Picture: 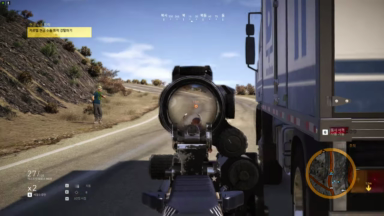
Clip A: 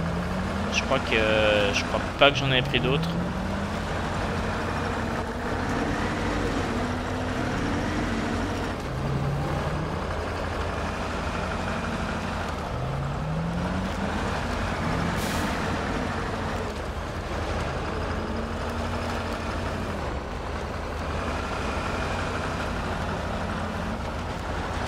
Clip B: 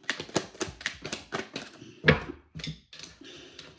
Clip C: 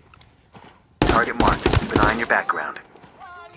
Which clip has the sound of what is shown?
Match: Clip C